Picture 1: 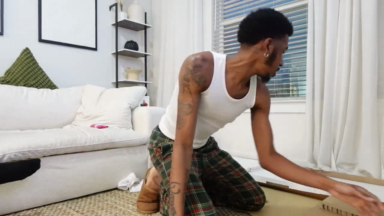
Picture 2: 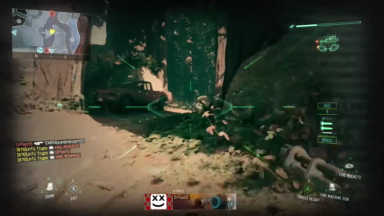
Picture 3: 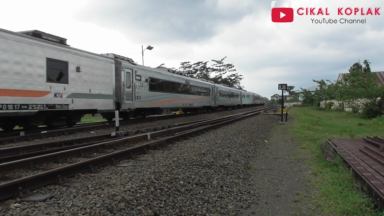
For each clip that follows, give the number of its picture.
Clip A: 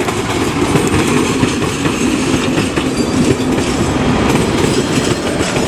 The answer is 3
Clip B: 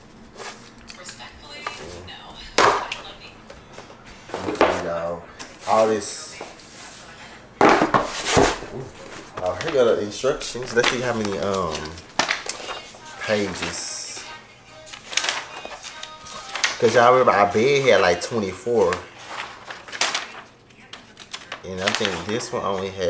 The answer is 1